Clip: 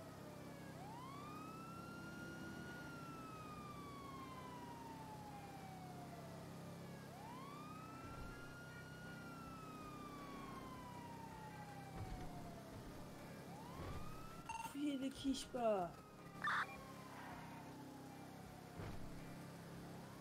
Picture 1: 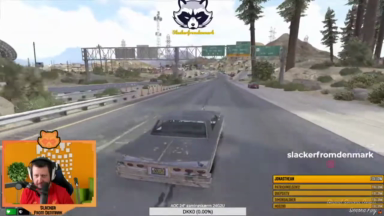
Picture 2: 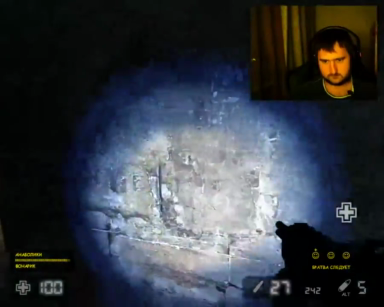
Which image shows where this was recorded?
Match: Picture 1